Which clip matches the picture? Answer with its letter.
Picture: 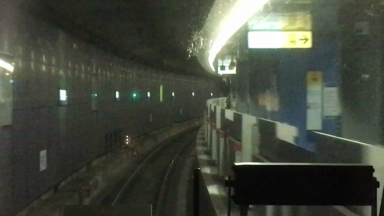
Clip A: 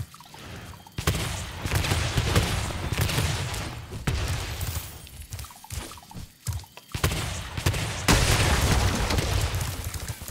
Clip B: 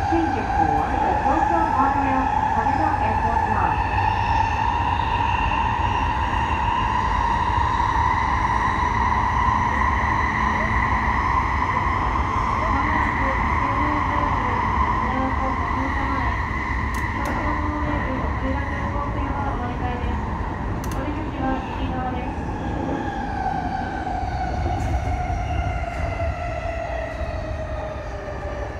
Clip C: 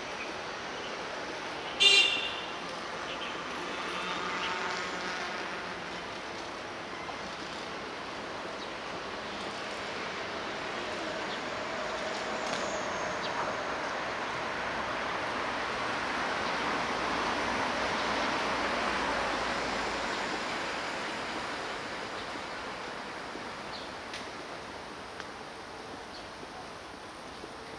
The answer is B